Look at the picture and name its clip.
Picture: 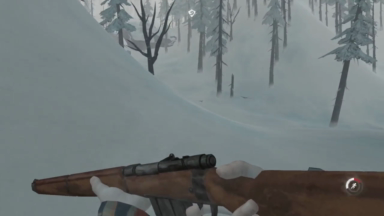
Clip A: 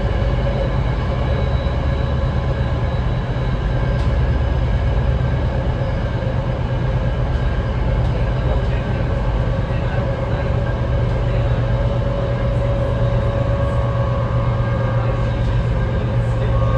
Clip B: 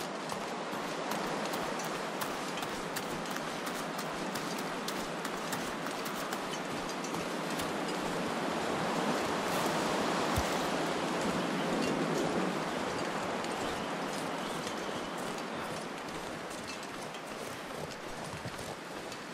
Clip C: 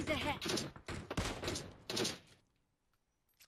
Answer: B